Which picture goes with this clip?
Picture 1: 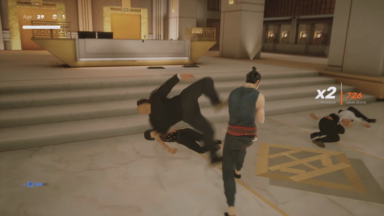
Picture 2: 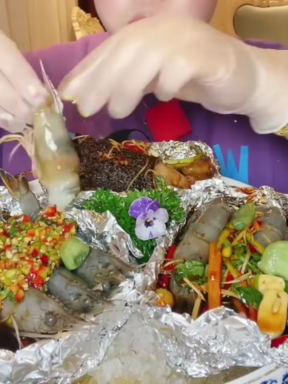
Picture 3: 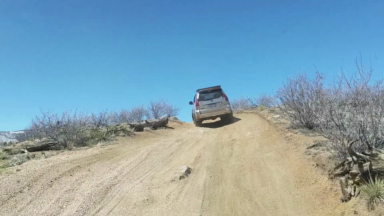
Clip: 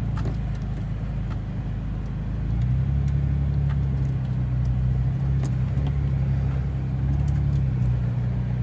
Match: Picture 3